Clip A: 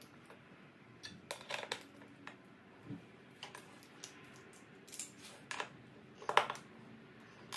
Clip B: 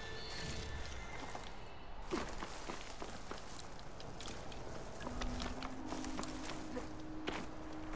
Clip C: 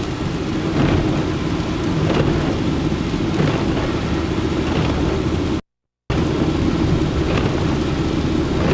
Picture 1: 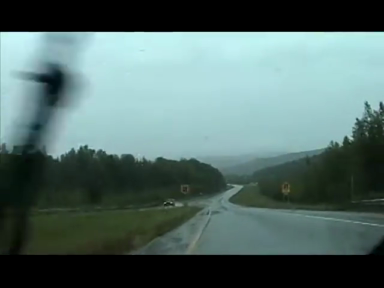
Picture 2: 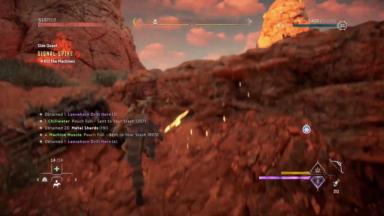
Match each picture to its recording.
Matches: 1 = C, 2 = B